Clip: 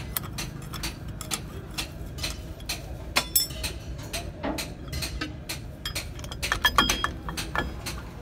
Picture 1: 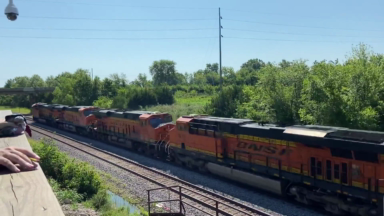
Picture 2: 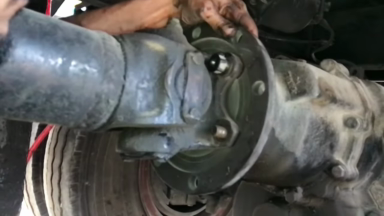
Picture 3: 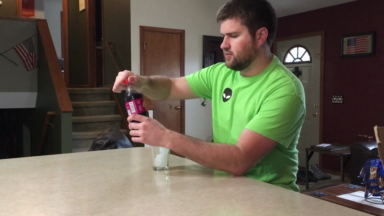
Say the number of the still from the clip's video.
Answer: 2